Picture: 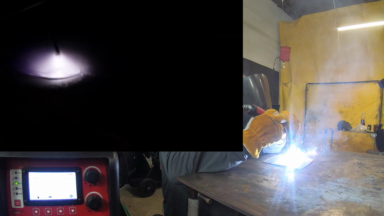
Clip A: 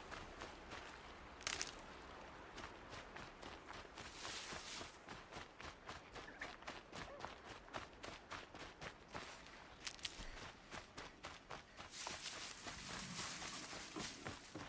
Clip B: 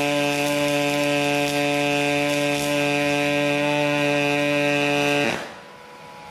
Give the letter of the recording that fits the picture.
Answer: B